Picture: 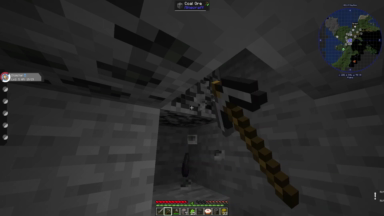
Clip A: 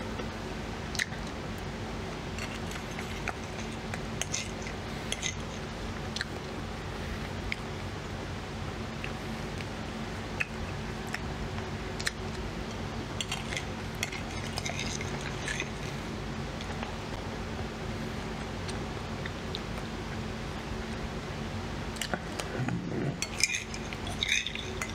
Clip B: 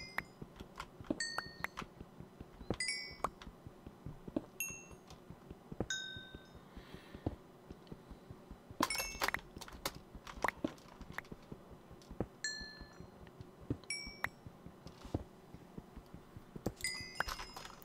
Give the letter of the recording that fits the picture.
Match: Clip B